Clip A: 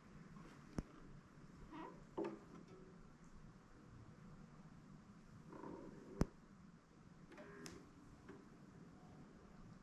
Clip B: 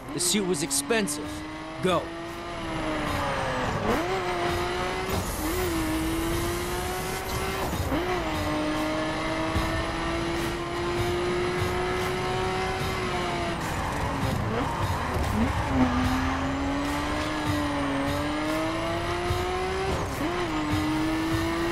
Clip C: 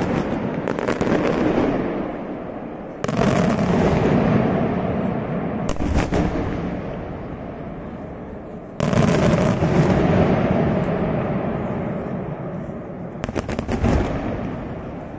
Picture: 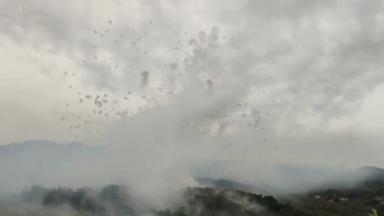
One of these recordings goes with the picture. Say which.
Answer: C